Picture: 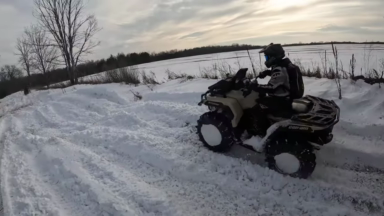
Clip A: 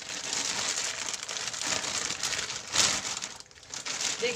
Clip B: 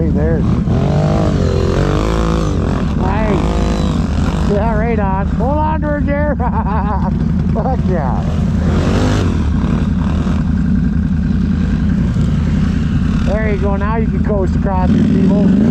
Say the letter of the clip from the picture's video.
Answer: B